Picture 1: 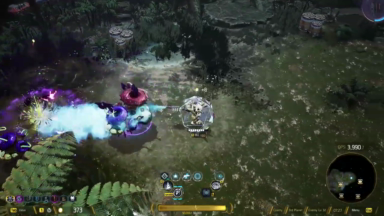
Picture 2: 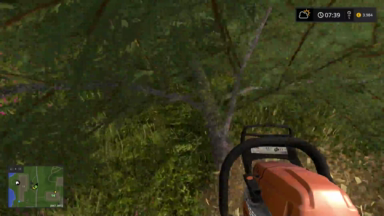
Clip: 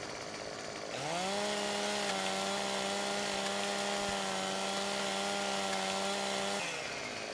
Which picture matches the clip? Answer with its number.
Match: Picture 2